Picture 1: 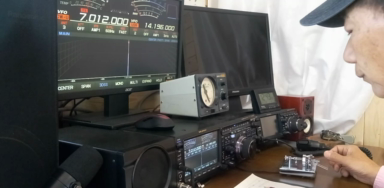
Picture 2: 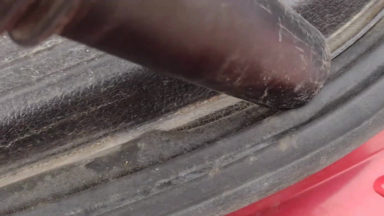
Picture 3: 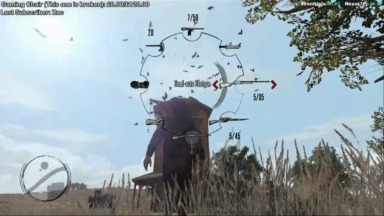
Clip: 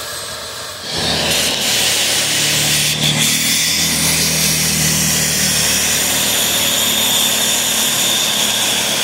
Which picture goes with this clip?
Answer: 2